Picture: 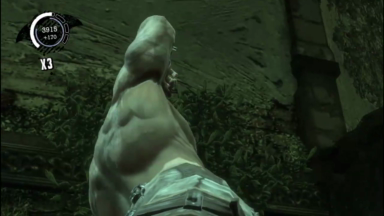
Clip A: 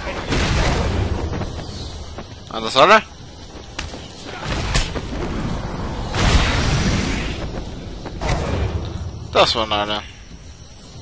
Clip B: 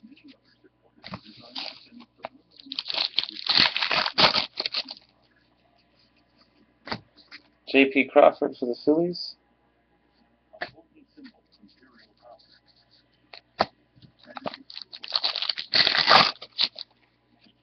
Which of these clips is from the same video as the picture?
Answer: A